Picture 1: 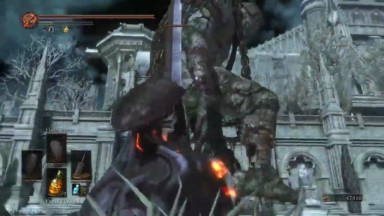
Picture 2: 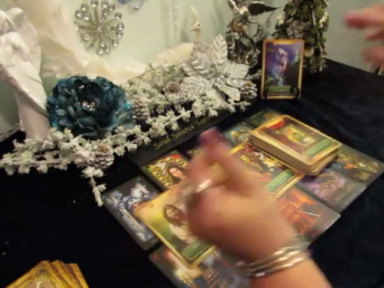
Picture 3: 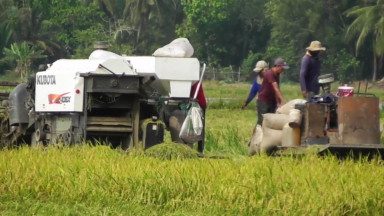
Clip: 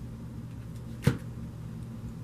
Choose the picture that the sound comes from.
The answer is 2